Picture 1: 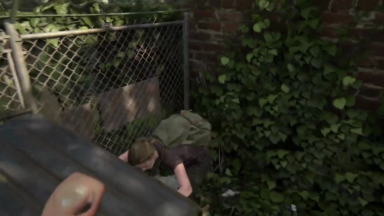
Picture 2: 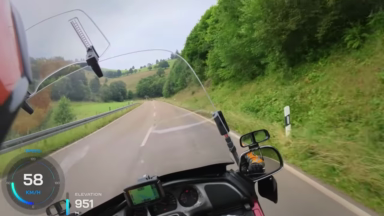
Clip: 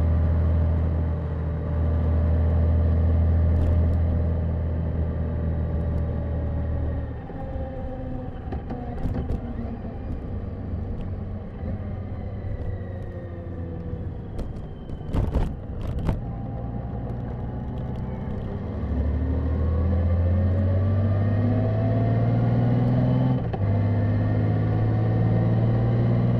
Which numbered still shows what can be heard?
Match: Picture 2